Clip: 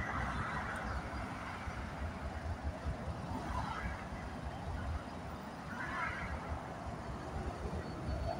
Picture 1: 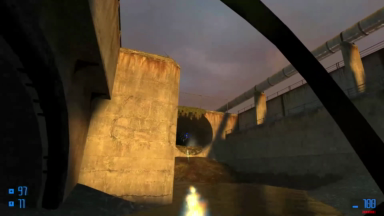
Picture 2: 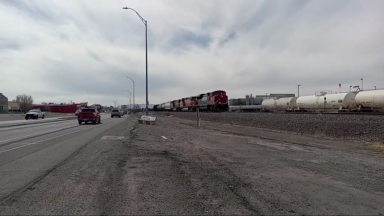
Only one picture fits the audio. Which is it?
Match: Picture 2